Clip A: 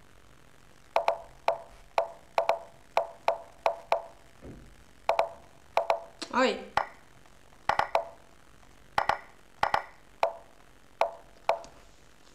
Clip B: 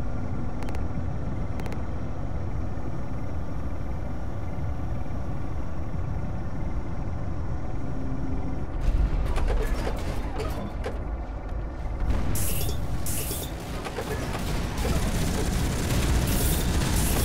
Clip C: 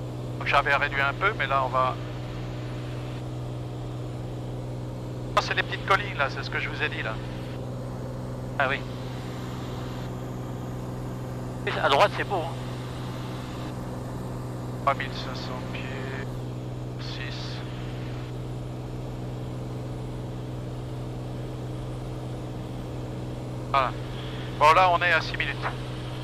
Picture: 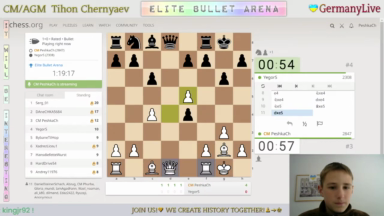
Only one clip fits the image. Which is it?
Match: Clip A